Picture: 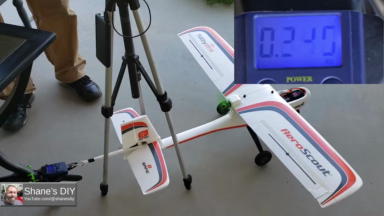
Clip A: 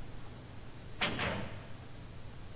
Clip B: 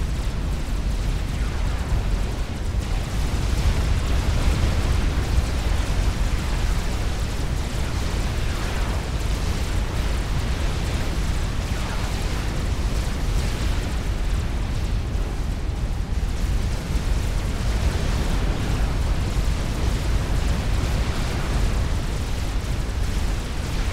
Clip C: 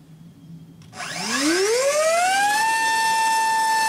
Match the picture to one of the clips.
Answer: C